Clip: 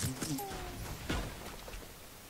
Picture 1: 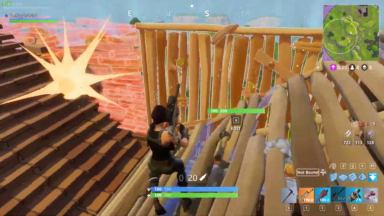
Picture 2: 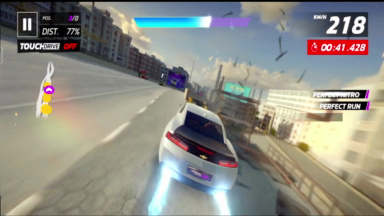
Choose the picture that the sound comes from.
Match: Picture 1